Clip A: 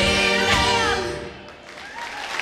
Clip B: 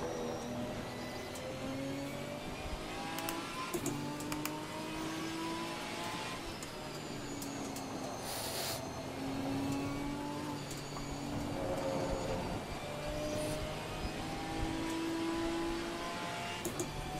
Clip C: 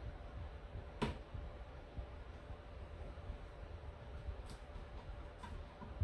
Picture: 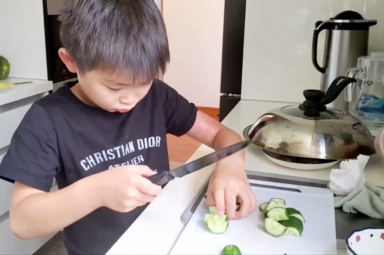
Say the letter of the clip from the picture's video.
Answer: C